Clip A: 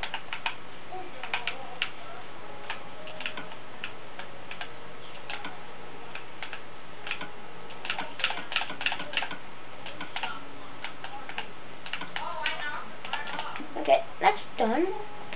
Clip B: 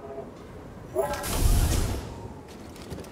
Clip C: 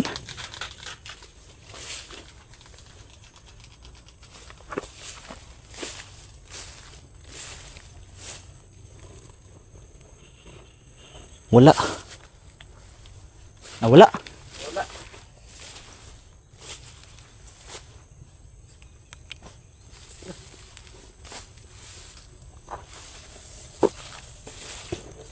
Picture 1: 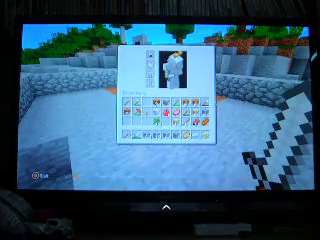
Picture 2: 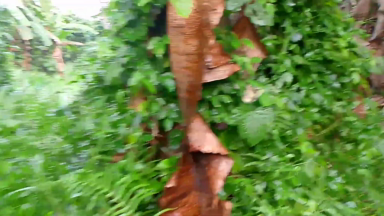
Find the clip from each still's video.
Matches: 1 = A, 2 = C